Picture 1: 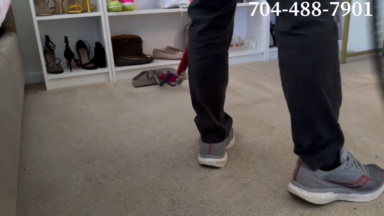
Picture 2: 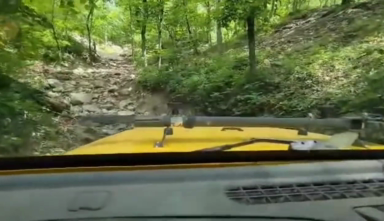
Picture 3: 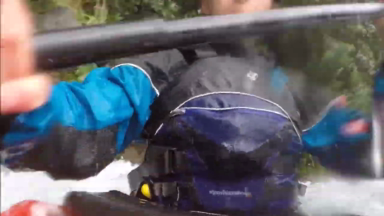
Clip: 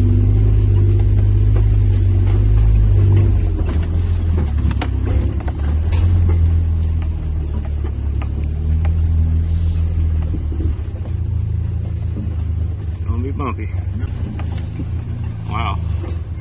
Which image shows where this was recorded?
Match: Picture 2